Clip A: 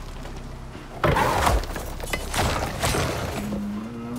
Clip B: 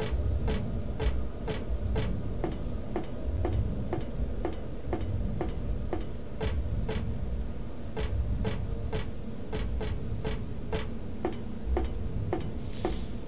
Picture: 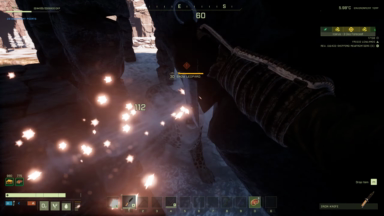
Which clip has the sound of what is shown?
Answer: A